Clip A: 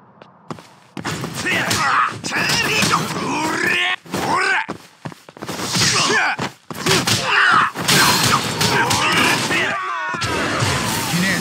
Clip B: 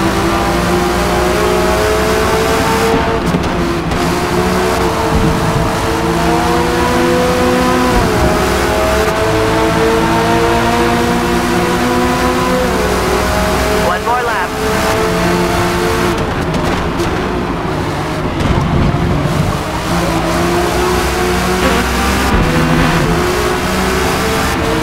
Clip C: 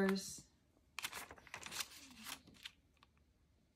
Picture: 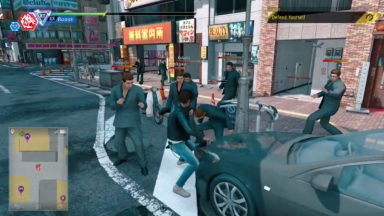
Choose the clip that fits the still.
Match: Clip A